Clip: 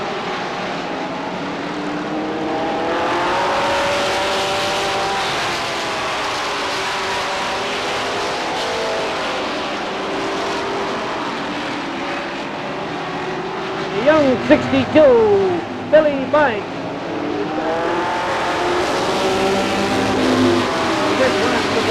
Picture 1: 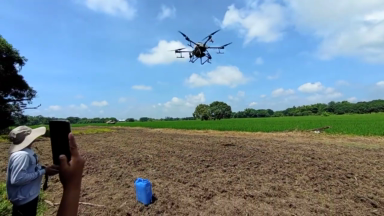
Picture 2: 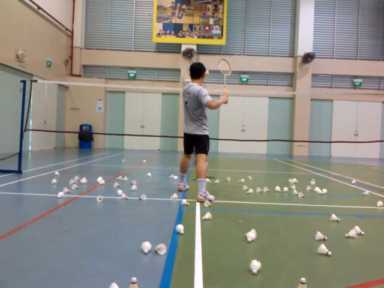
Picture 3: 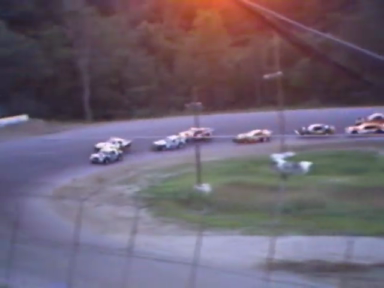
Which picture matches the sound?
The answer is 3